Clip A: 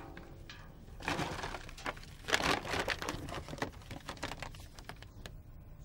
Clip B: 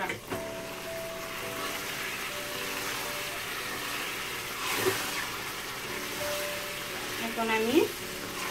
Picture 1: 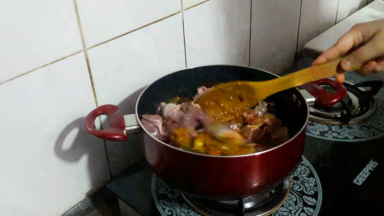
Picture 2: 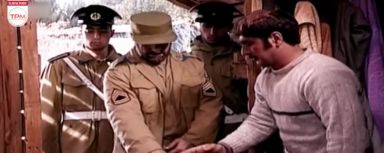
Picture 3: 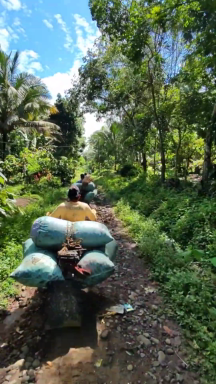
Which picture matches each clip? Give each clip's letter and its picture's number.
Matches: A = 2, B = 1